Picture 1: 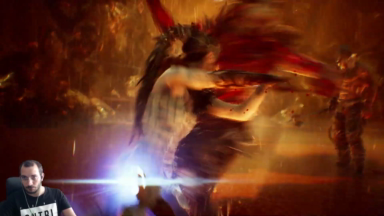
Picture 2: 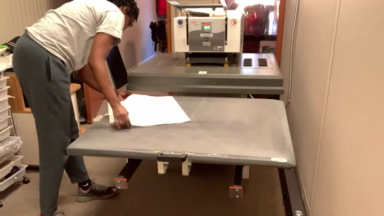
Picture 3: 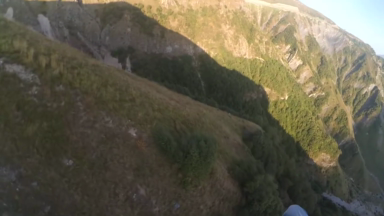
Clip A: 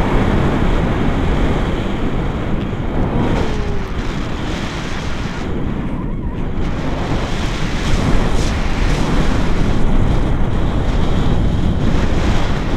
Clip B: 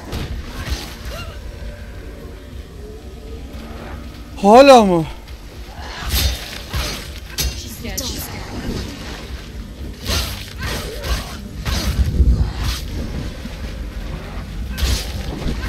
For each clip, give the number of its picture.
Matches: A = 3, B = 1